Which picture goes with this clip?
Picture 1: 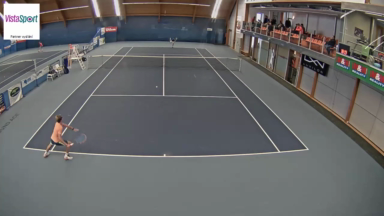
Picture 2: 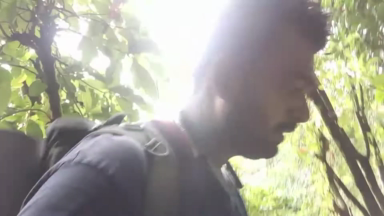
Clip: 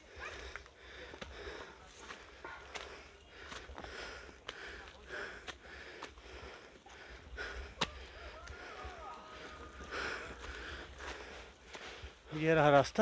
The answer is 2